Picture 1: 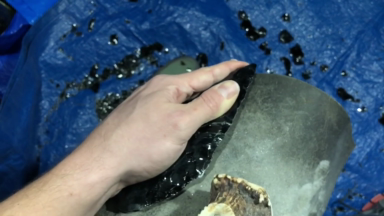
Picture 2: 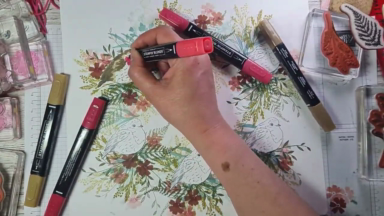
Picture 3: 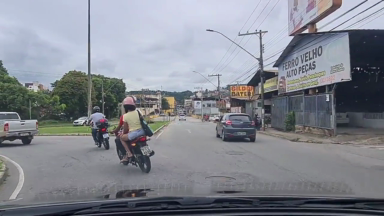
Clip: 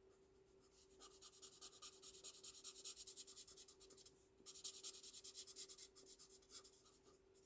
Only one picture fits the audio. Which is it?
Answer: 2